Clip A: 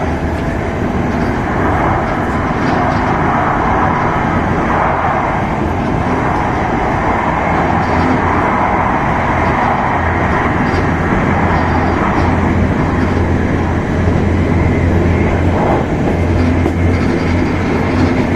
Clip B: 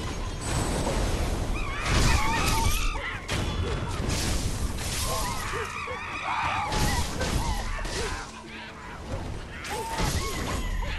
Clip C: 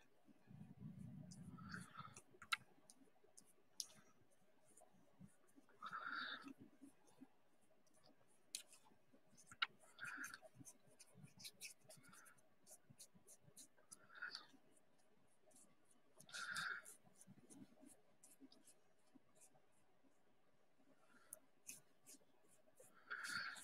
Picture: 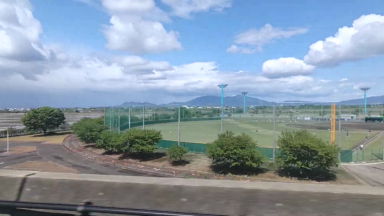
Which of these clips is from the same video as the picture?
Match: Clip A